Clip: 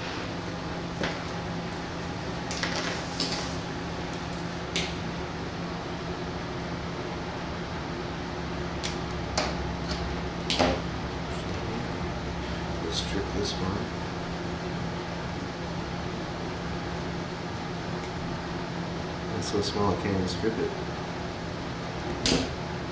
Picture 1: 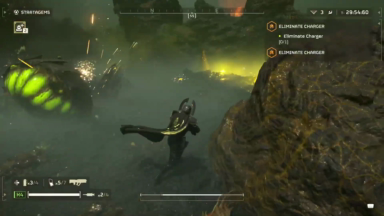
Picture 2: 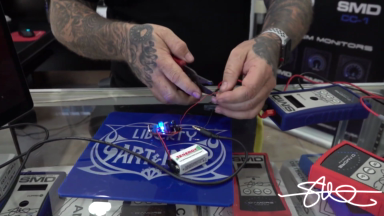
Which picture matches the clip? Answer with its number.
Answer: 2